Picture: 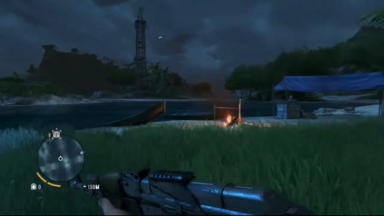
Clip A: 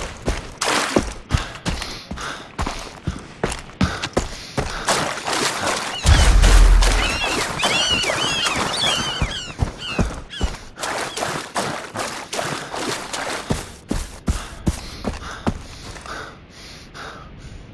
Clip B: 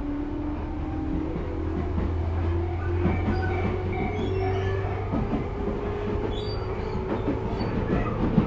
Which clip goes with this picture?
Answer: A